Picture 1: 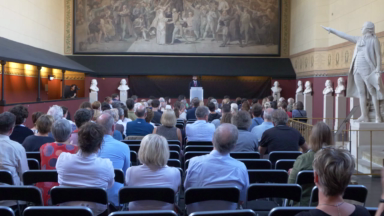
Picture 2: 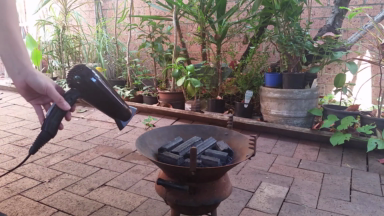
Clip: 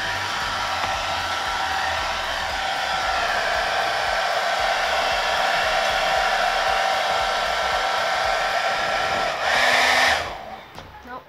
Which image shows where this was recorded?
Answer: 2